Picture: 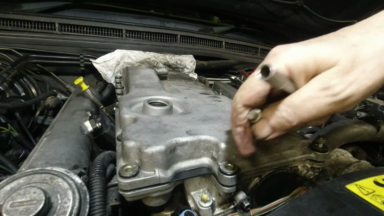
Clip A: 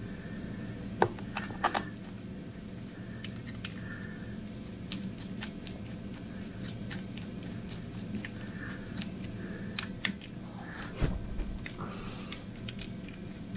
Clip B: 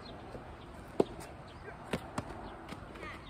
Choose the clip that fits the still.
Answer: A